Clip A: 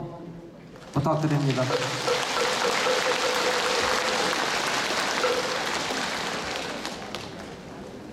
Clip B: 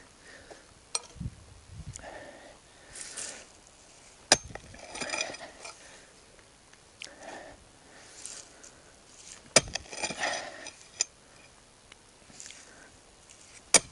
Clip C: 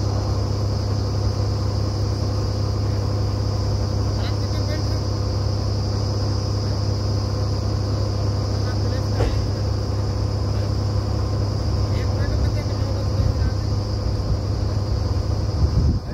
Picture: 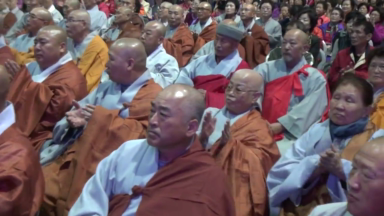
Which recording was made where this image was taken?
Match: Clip A